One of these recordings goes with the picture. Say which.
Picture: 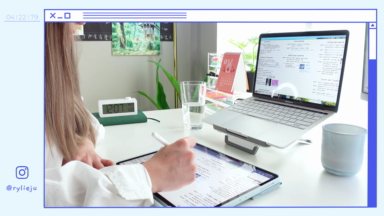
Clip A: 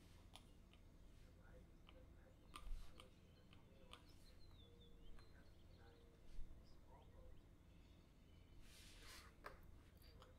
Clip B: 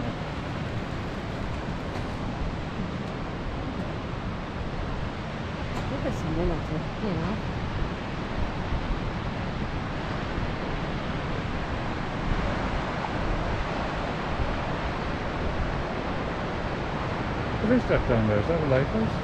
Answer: A